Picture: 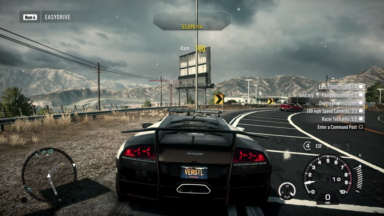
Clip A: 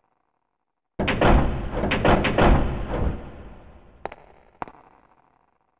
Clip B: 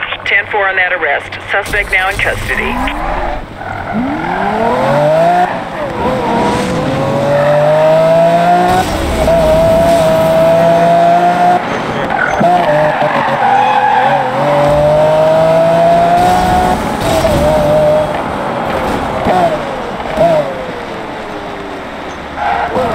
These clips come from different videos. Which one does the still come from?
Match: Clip B